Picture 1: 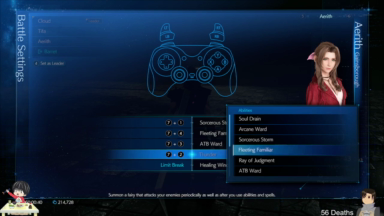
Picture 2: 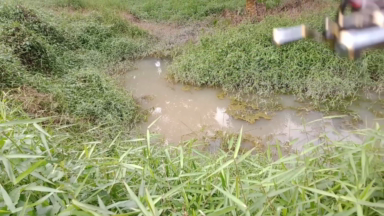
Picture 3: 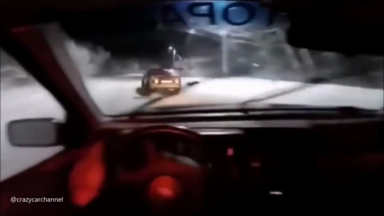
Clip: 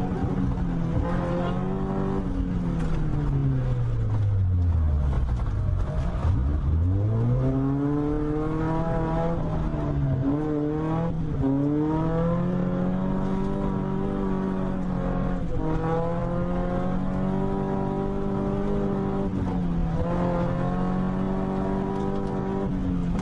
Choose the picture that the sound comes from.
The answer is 3